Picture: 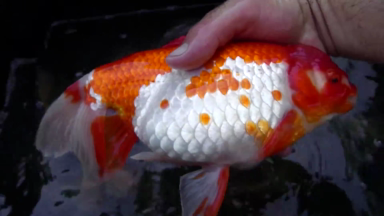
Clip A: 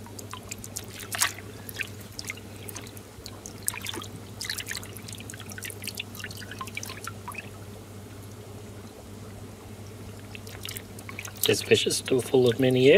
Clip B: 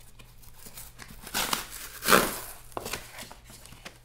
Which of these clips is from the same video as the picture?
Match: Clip A